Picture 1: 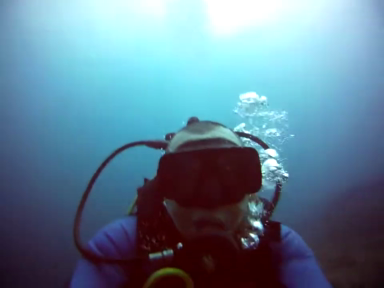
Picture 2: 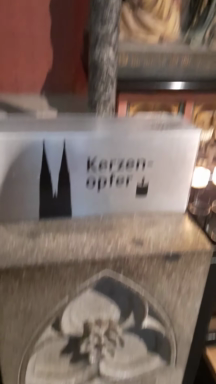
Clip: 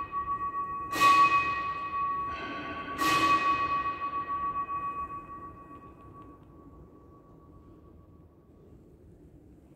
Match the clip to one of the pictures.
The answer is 2